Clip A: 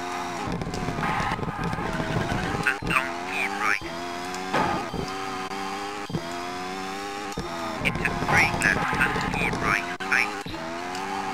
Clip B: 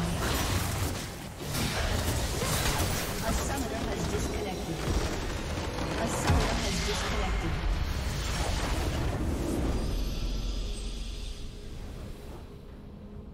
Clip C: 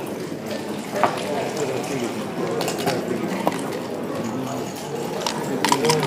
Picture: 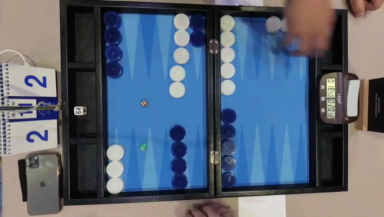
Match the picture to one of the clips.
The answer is C